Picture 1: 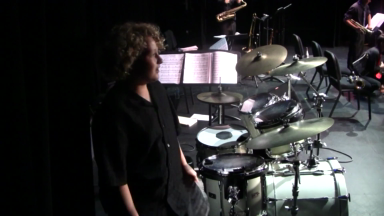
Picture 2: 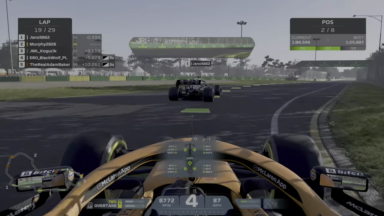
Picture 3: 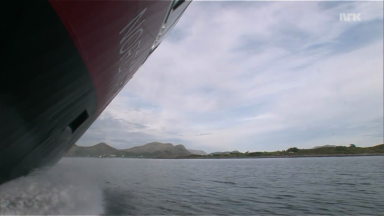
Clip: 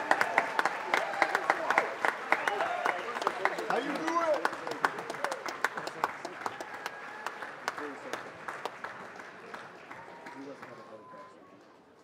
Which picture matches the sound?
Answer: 1